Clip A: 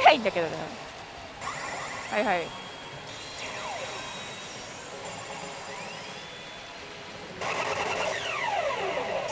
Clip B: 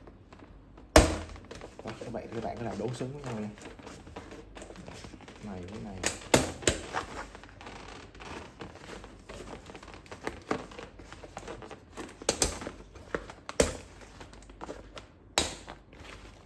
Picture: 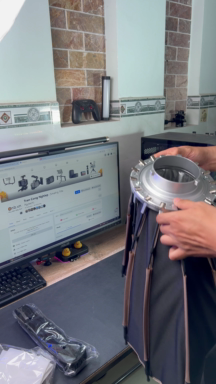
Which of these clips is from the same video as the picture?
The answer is B